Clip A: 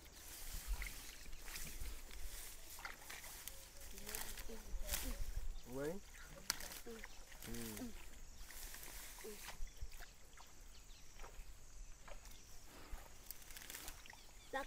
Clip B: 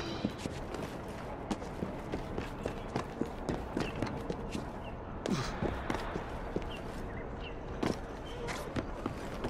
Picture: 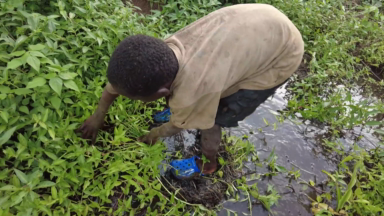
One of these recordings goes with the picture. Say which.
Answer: A